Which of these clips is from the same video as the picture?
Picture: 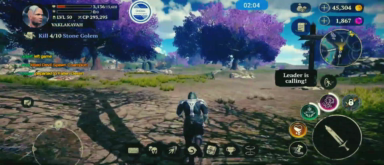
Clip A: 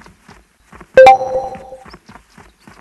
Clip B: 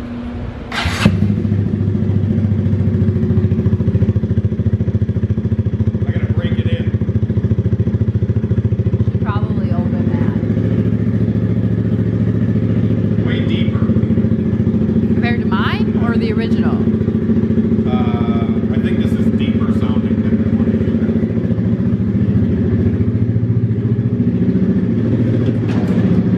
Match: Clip A